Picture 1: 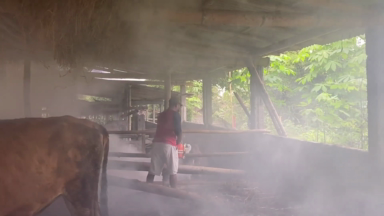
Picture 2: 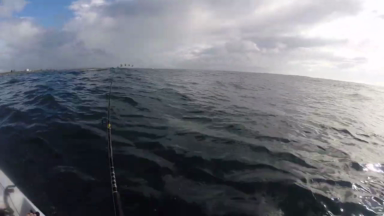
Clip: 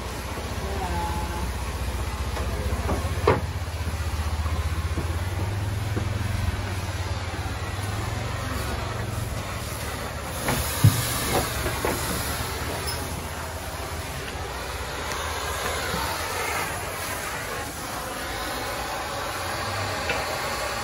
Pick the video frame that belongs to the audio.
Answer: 1